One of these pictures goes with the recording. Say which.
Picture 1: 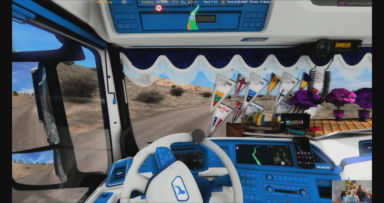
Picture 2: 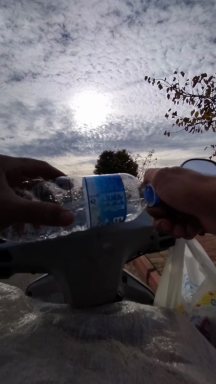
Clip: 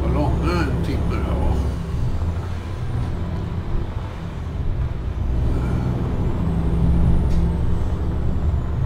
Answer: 1